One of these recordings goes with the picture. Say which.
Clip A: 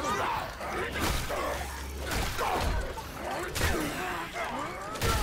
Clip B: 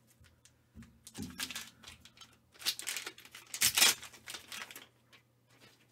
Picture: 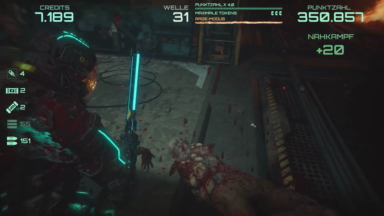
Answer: A